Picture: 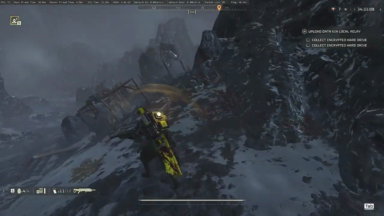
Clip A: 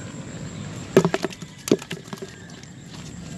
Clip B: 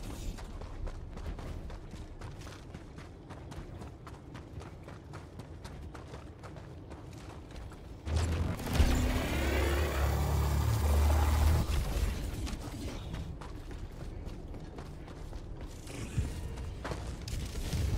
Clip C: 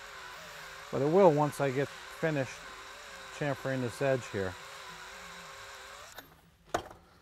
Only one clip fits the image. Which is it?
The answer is B